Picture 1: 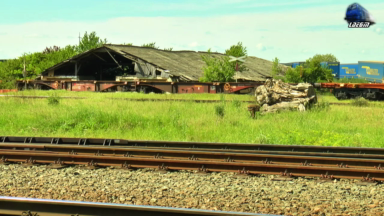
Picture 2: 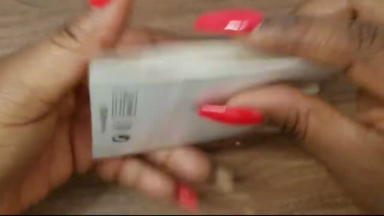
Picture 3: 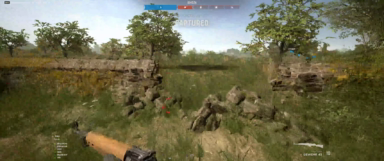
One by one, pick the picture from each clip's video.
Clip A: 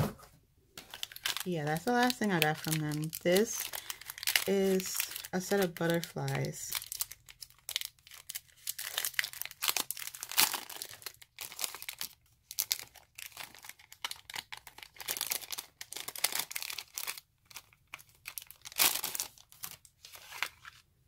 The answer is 2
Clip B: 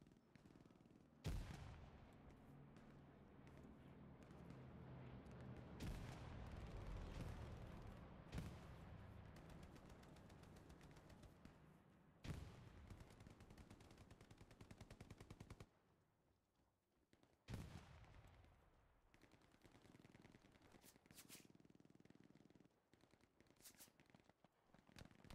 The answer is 3